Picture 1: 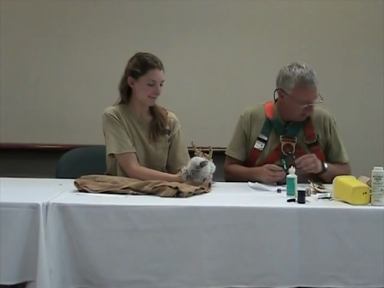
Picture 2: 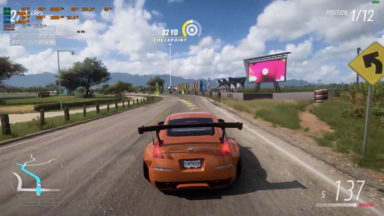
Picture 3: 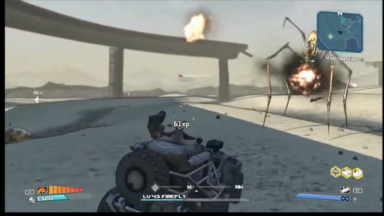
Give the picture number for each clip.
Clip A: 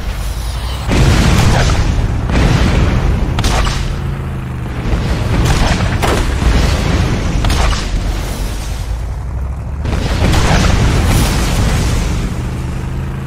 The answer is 3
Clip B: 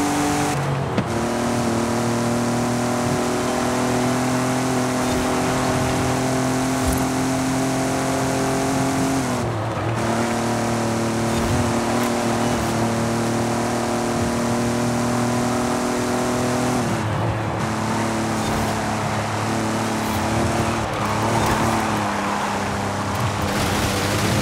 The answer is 2